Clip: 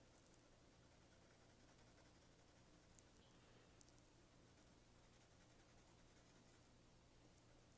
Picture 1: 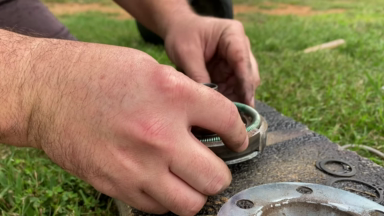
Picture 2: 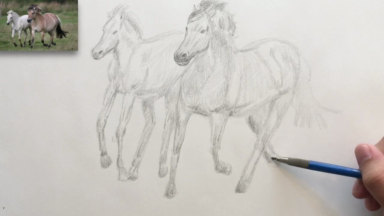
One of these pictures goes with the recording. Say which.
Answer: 2